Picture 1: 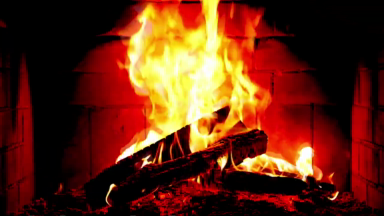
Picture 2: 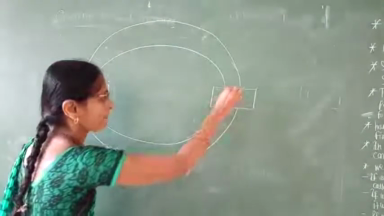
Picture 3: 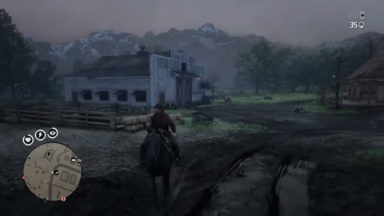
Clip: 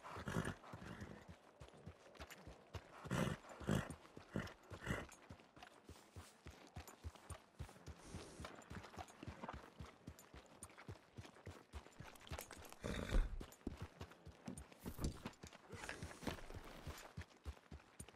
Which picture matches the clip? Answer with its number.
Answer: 3